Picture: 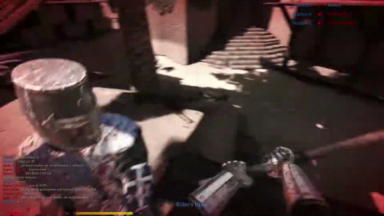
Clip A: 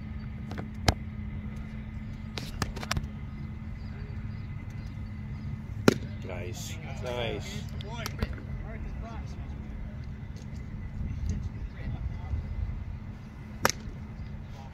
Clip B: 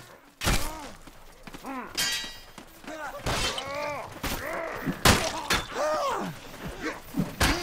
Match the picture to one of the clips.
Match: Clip B